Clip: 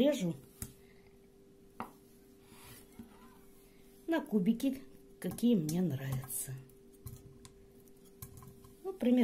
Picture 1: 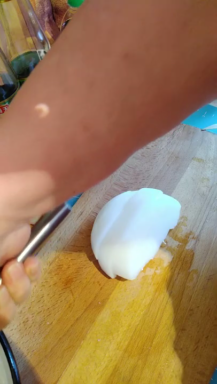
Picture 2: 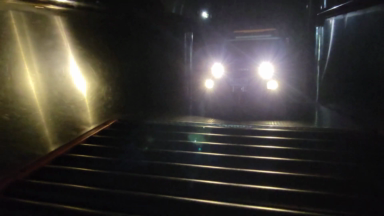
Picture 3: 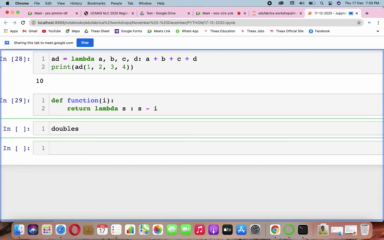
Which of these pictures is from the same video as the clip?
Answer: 1